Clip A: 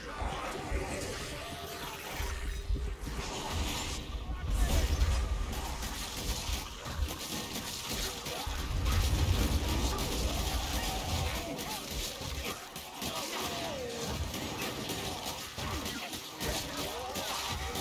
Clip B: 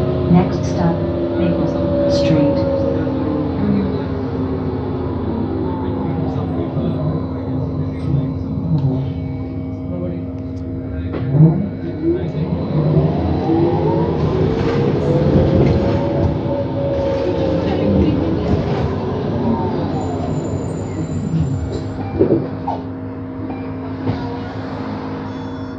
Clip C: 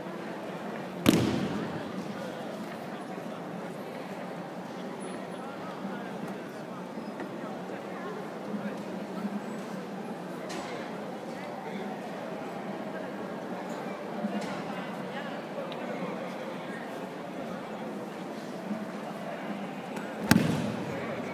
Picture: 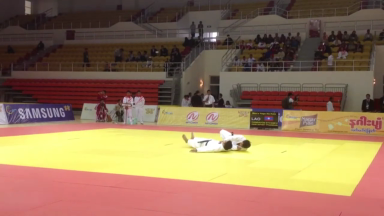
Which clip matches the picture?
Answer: C